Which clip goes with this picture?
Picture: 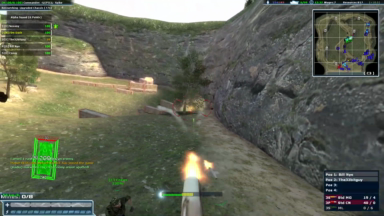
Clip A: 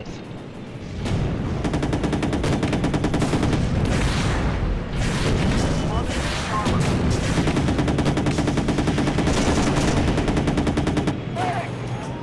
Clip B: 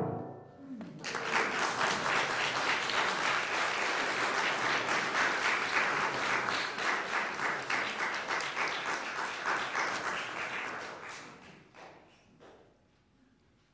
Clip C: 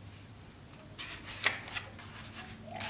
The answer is A